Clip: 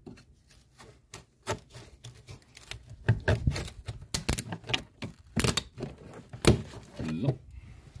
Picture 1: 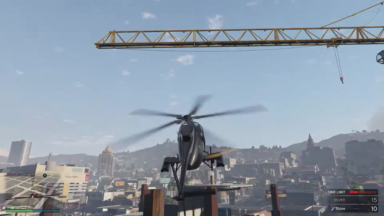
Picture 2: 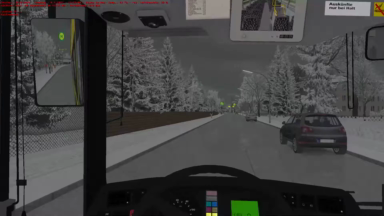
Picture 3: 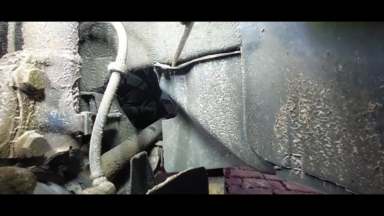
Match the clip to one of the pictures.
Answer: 3